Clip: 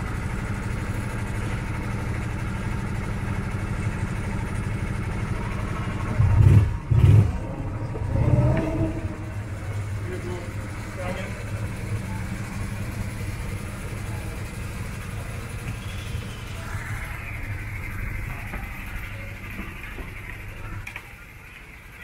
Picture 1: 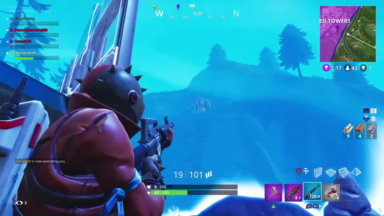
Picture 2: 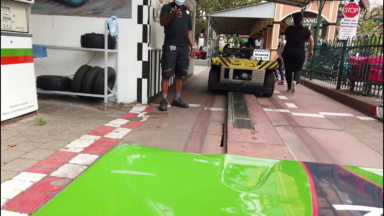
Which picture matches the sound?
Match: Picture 2